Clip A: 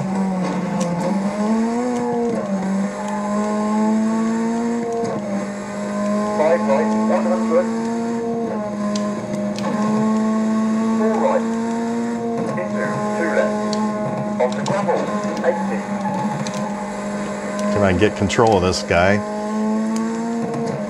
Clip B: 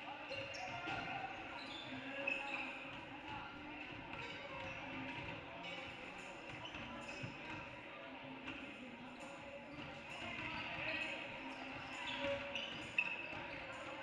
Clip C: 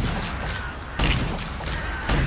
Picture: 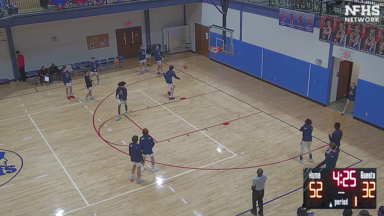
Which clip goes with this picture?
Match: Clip B